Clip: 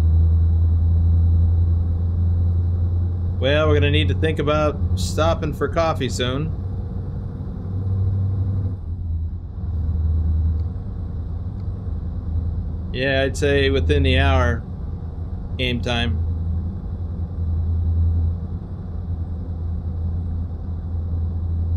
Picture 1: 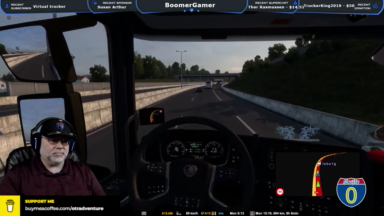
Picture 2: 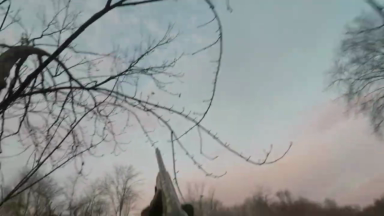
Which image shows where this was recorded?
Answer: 1